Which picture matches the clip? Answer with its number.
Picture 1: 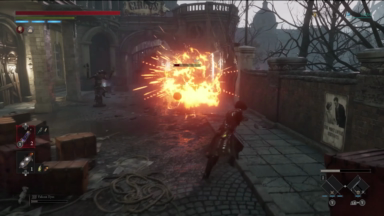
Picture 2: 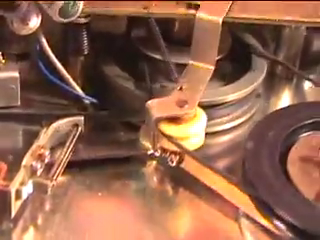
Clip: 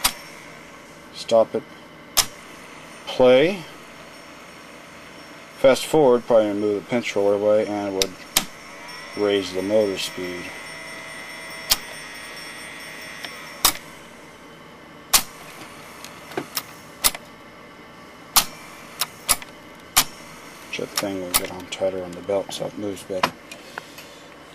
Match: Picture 2